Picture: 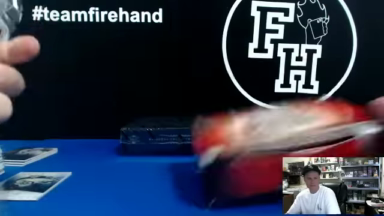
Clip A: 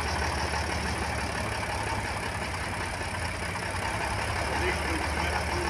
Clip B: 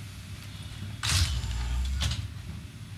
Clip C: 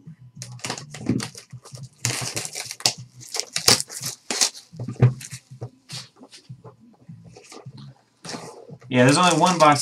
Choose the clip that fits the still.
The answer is C